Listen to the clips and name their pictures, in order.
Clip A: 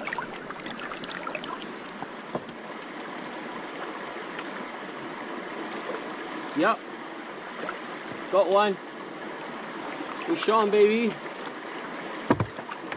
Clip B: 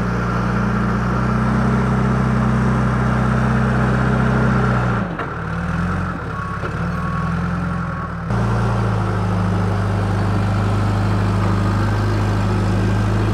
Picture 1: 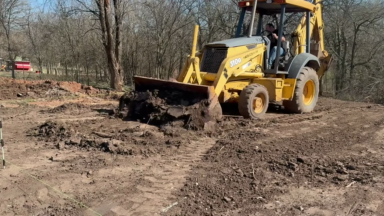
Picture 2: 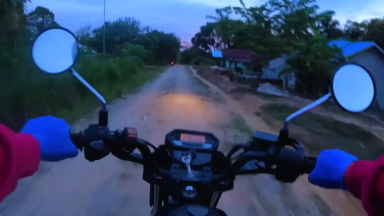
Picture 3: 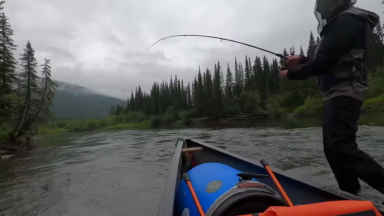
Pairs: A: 3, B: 1